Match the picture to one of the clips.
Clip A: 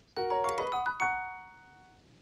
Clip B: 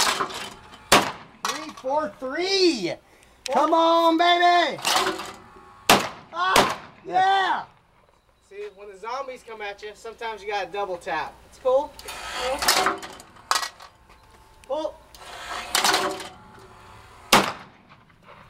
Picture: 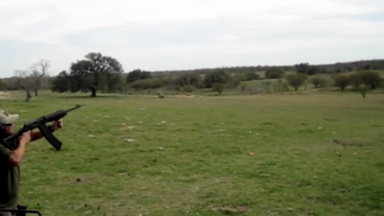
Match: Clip B